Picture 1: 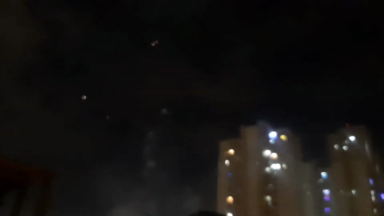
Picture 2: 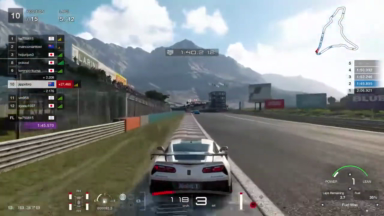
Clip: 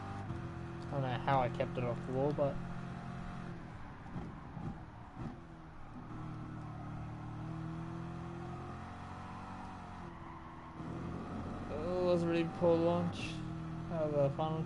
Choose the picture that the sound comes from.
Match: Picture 2